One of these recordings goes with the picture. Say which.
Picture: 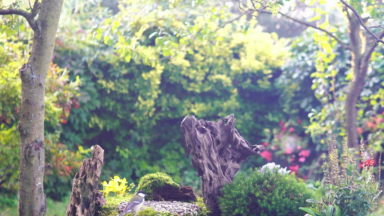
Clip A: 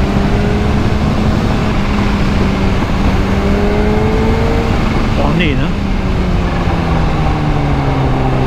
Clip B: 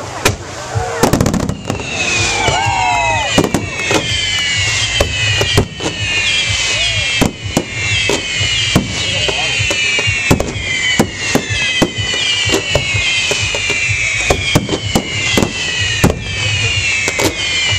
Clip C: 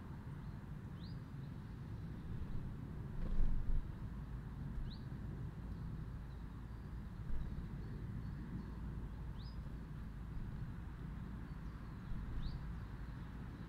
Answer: C